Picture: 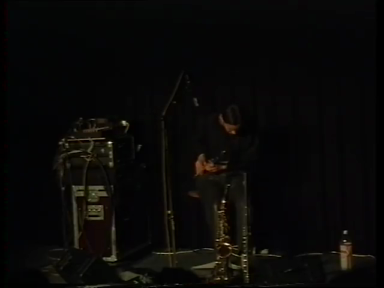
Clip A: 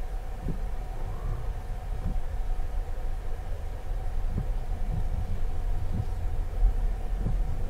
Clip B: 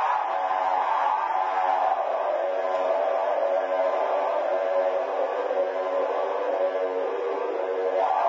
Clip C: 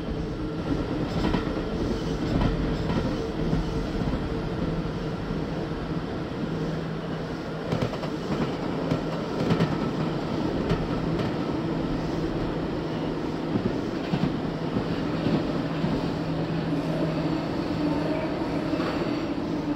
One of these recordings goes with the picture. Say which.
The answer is B